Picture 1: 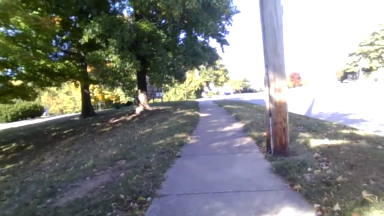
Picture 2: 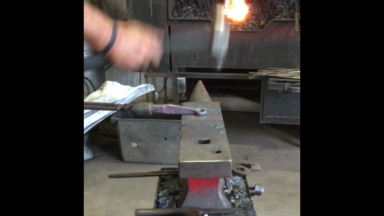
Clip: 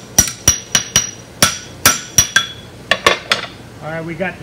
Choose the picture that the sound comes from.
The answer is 2